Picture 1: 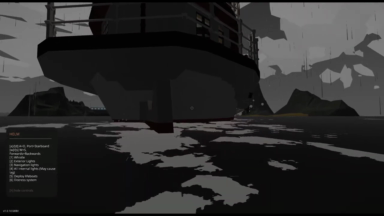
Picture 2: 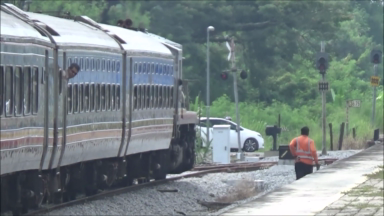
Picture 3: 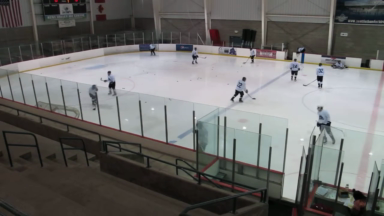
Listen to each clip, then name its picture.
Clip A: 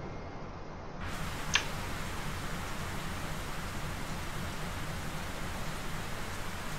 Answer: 1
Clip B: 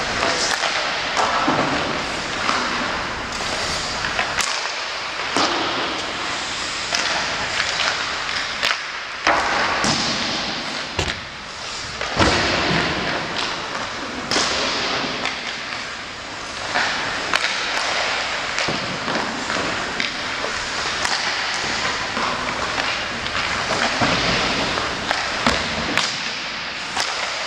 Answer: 3